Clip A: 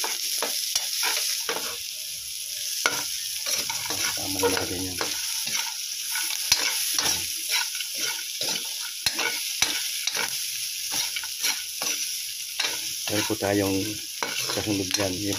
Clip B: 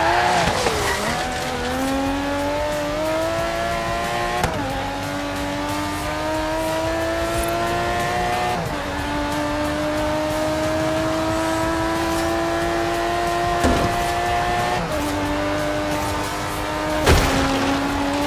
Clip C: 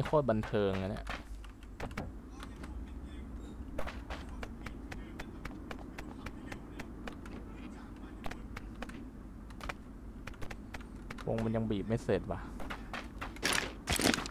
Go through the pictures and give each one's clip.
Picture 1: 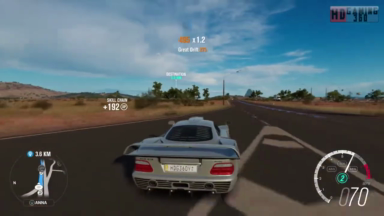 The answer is B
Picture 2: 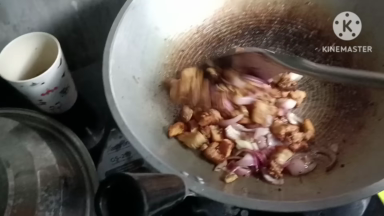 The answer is A